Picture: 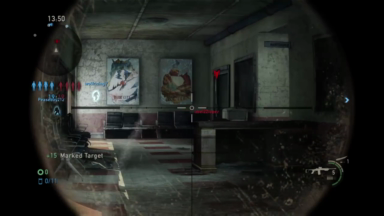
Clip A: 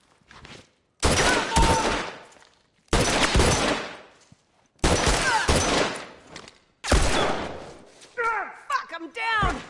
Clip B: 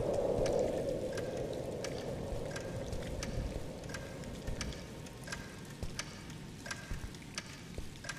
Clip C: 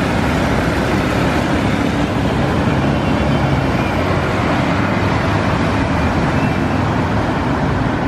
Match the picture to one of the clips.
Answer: A